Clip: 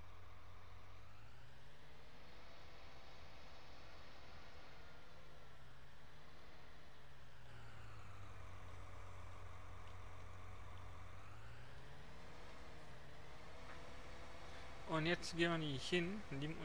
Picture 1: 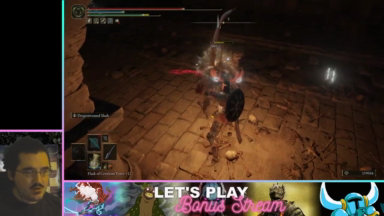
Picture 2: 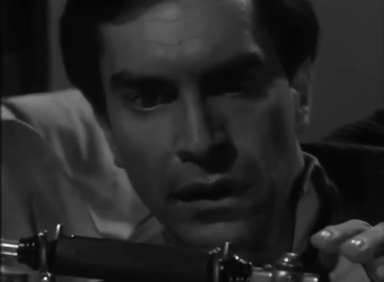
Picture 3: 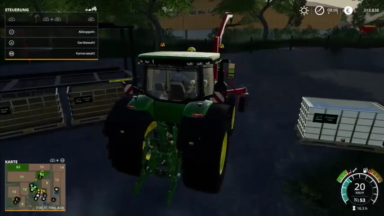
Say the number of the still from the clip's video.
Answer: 3